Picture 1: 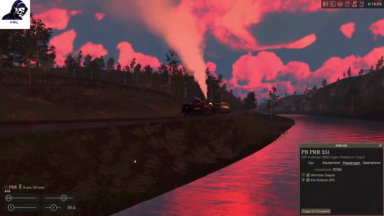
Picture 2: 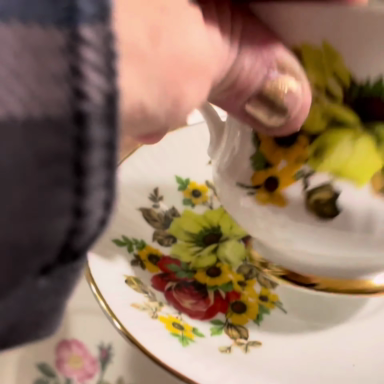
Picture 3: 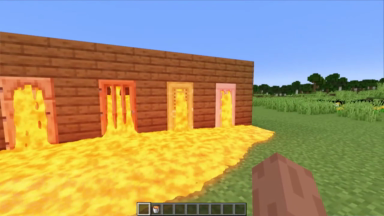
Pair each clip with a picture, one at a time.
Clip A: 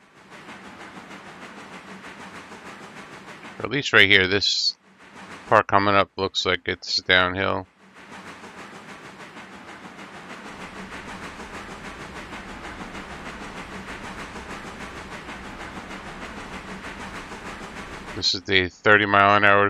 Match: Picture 1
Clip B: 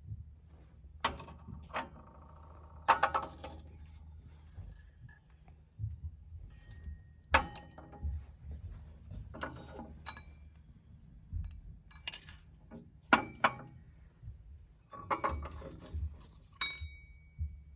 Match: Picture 2